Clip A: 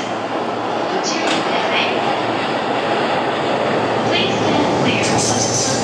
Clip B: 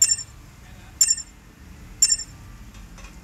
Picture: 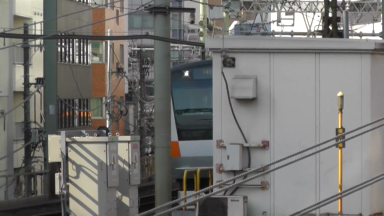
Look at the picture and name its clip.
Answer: A